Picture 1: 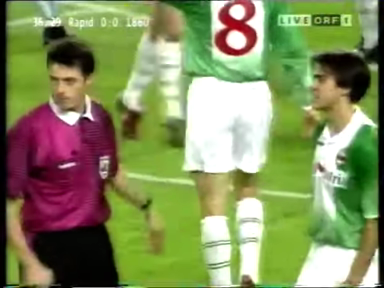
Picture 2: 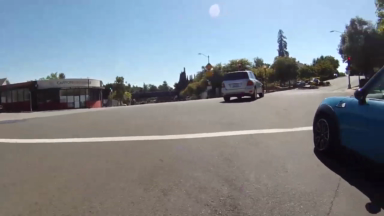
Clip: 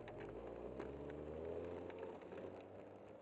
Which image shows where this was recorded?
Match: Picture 2